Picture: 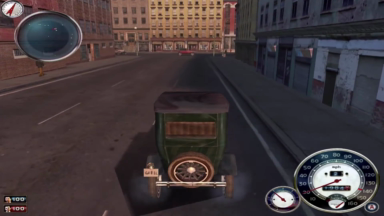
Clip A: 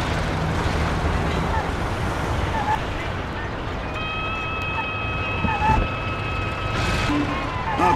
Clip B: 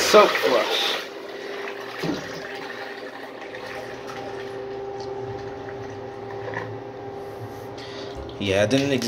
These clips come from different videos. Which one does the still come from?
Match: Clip A